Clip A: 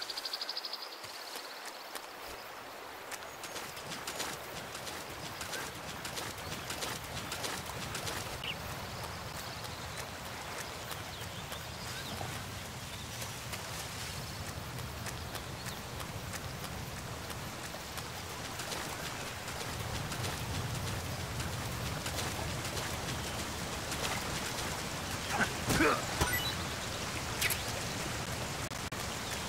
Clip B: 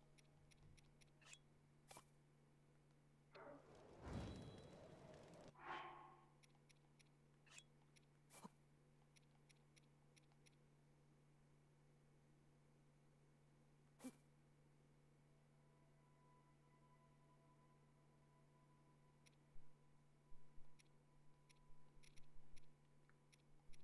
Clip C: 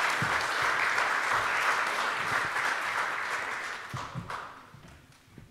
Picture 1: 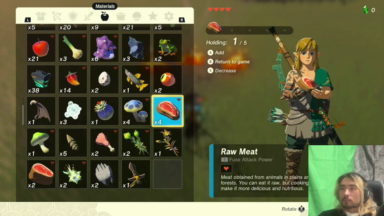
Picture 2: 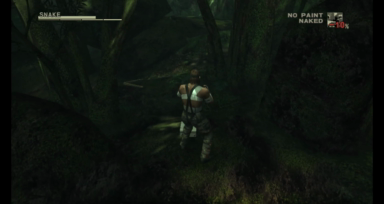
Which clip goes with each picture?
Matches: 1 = B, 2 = A